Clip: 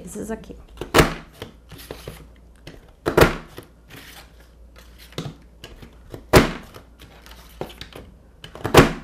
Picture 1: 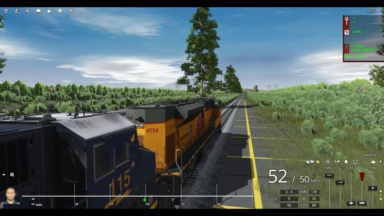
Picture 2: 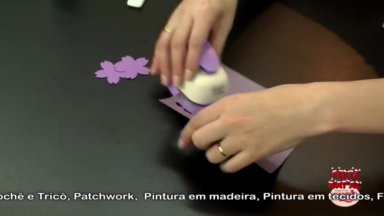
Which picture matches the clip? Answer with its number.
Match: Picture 2